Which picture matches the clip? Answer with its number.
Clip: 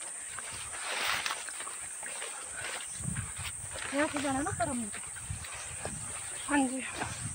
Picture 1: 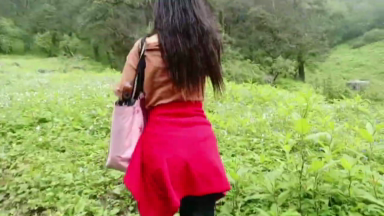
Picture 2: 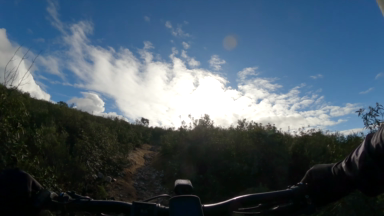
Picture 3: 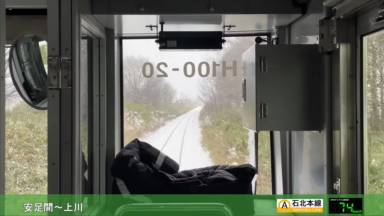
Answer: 1